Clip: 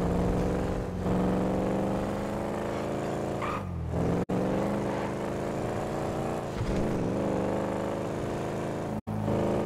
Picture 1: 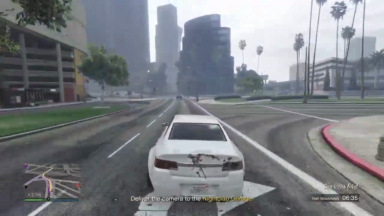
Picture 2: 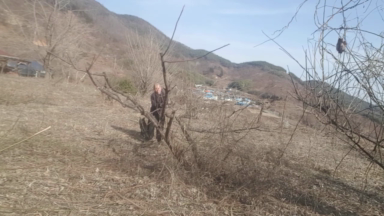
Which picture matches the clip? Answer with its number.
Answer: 1